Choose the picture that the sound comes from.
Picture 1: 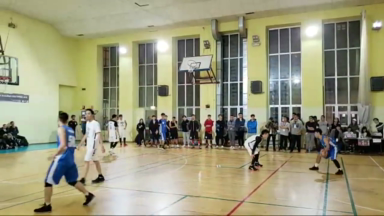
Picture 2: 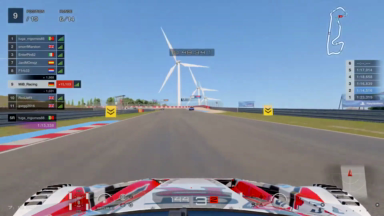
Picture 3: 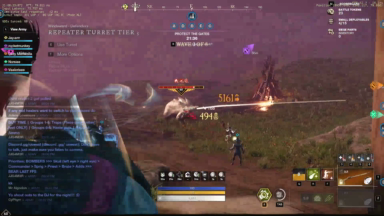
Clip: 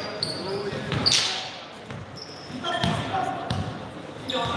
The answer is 1